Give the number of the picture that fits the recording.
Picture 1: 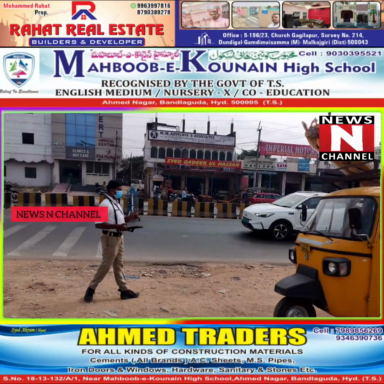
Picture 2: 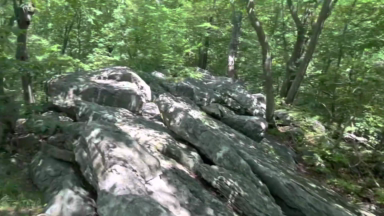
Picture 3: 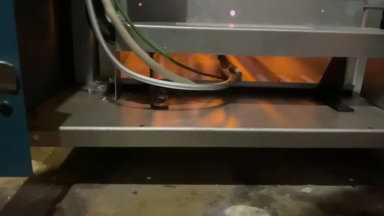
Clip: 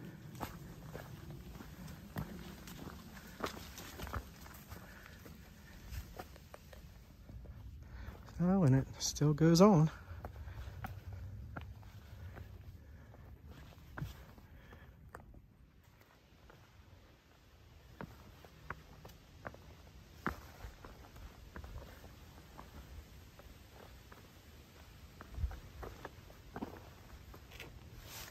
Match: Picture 2